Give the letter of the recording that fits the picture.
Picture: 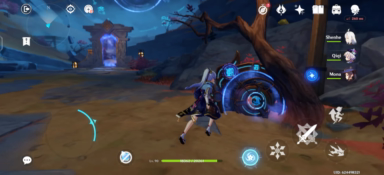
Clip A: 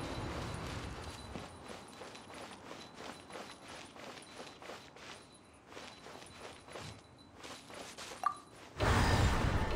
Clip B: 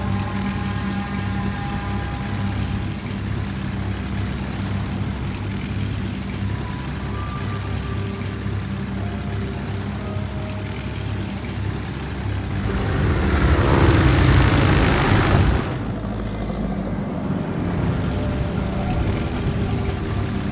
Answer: A